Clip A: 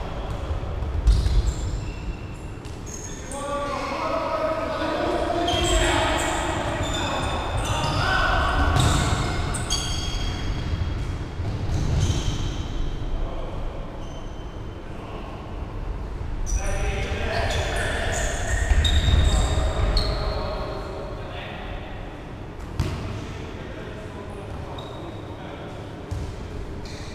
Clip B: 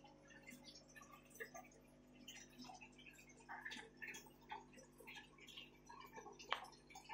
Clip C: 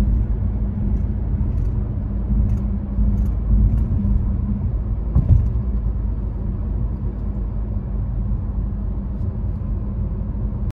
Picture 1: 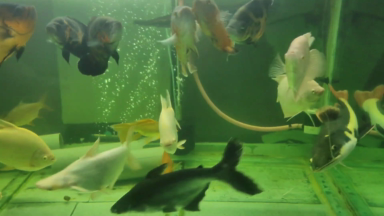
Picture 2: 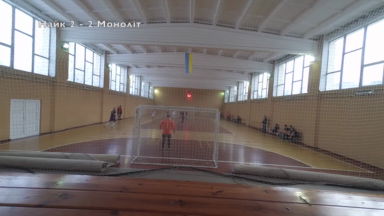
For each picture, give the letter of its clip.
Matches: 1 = B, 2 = A